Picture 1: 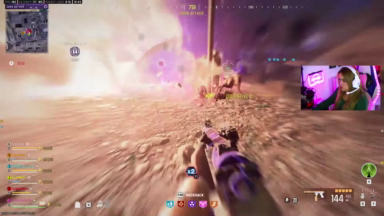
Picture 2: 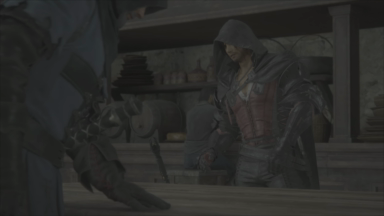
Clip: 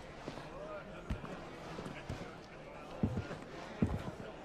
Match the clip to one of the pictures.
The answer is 2